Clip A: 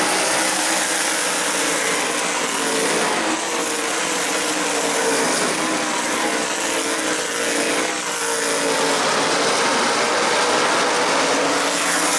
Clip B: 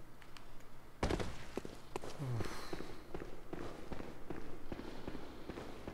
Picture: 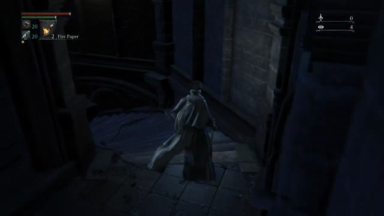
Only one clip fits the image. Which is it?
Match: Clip B